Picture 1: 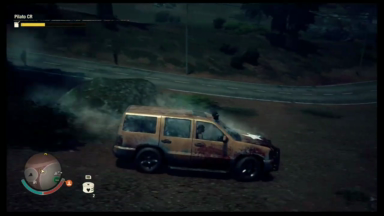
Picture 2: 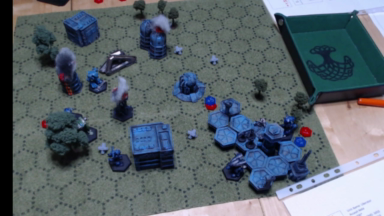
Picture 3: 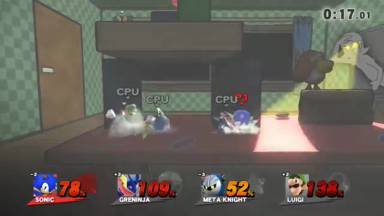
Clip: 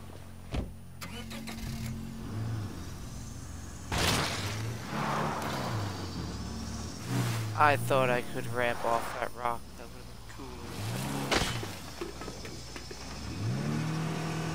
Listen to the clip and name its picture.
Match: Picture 1